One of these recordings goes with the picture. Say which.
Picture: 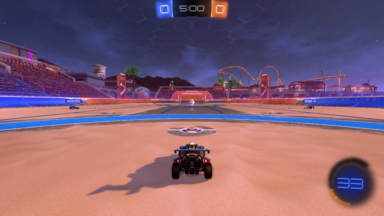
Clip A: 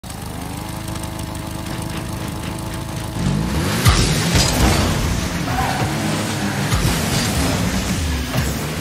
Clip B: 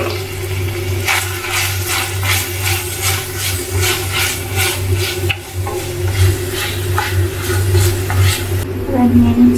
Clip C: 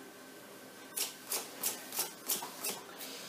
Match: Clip A